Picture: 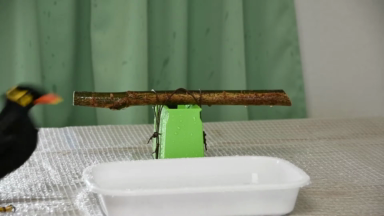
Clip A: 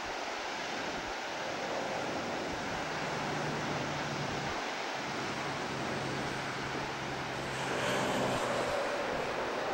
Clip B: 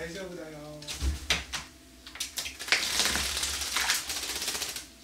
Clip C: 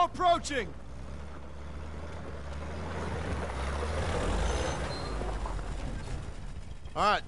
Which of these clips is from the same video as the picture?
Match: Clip B